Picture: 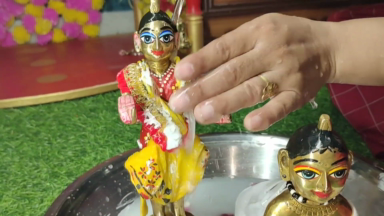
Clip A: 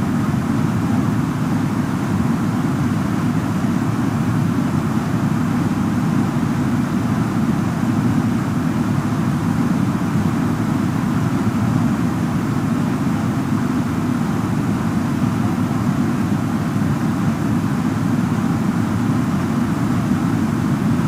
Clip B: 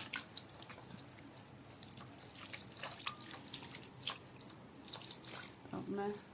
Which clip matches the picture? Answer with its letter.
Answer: B